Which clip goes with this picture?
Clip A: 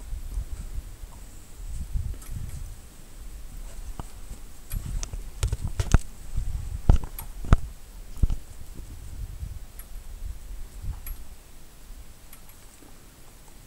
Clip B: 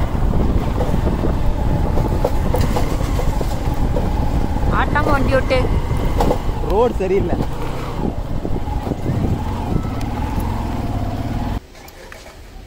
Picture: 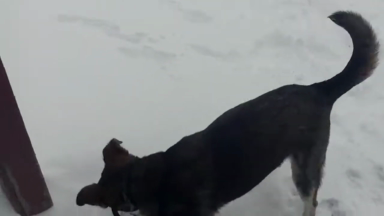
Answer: A